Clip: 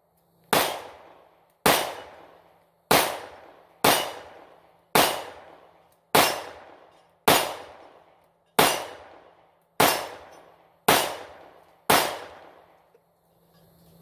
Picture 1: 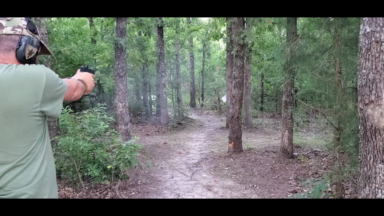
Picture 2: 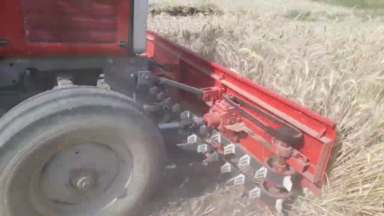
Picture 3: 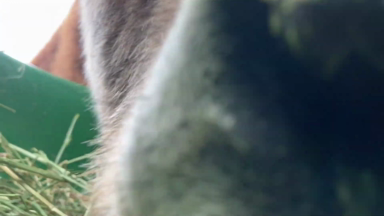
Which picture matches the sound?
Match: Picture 1